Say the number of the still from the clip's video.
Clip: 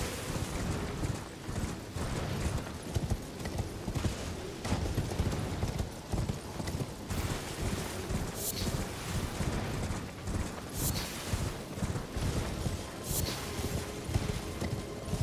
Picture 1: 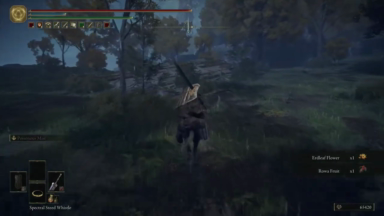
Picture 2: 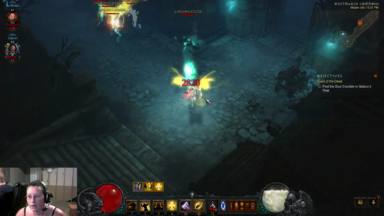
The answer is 1